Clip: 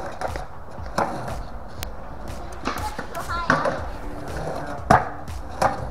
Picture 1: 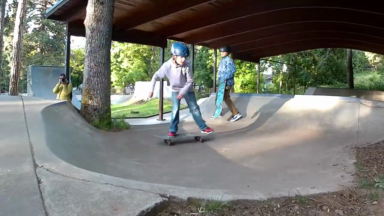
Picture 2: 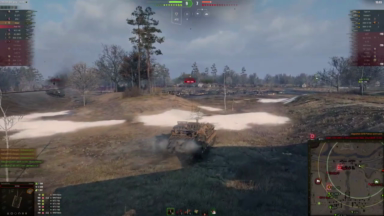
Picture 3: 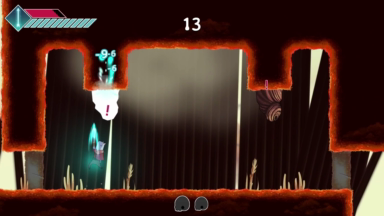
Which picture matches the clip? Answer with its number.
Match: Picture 1